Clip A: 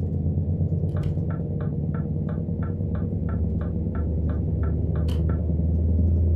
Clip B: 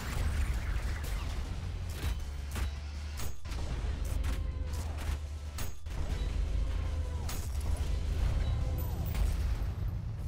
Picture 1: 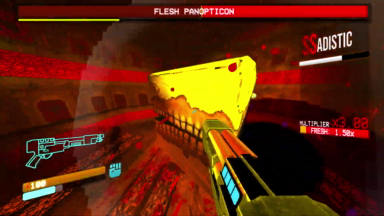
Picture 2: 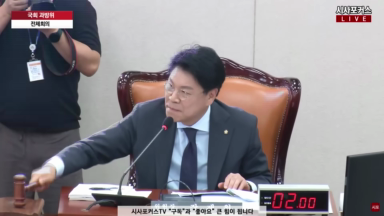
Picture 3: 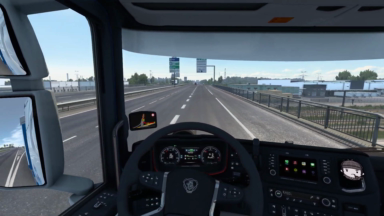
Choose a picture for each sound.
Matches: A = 3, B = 1